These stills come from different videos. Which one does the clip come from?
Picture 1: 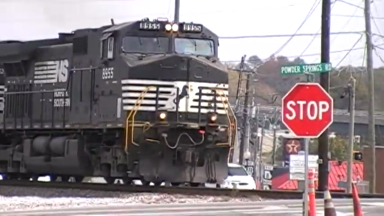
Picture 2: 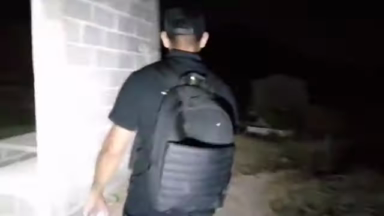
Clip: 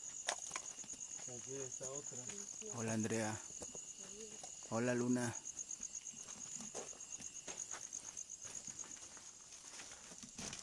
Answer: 2